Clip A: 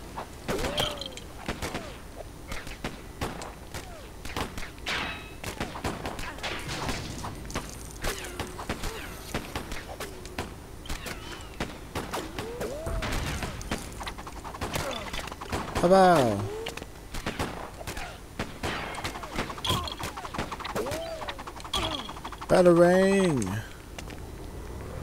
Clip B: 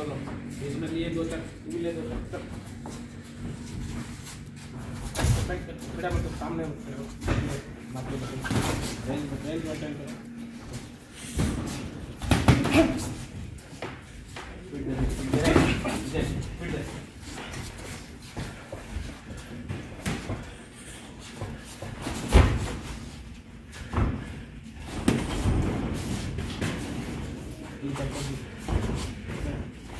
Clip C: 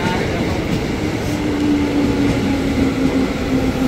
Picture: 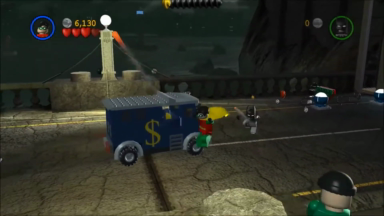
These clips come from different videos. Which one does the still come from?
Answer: A